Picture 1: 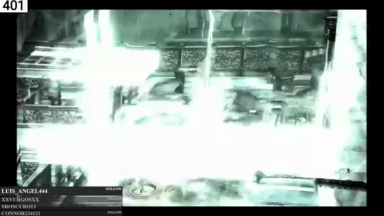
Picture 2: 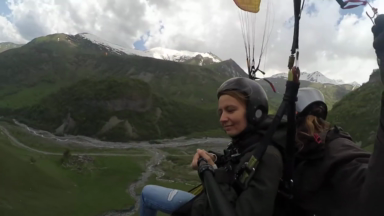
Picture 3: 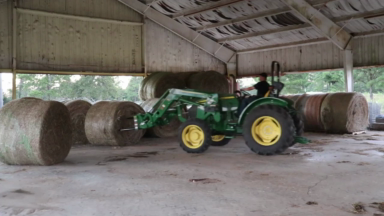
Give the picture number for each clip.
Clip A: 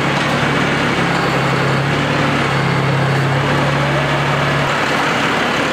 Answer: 3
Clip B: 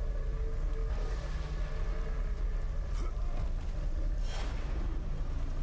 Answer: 1